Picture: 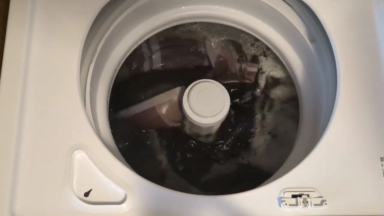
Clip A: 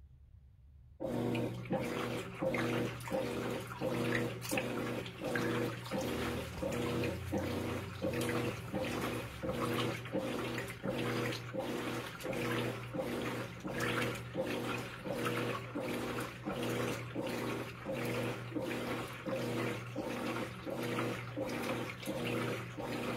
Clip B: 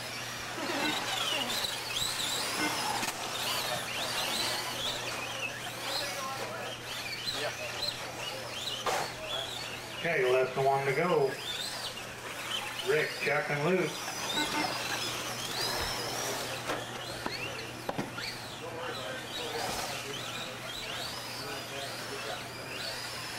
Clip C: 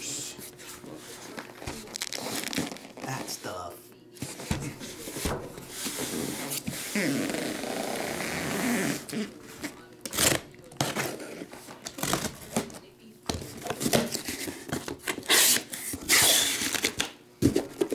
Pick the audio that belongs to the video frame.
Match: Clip A